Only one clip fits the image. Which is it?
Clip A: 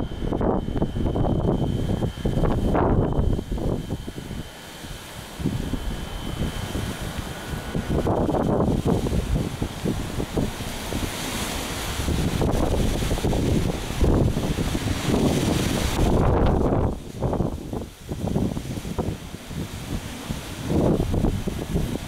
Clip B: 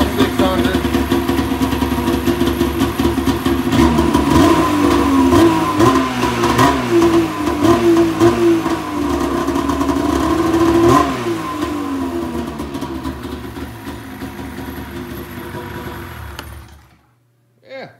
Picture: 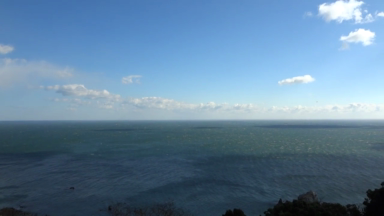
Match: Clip A